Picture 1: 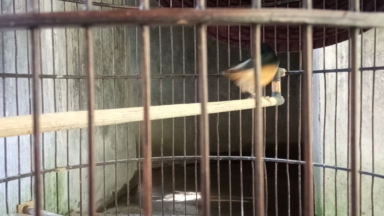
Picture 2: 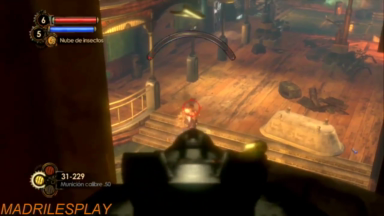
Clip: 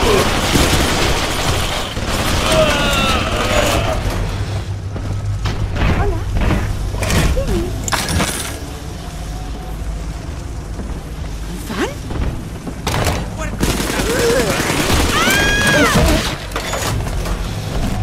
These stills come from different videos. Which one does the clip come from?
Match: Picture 2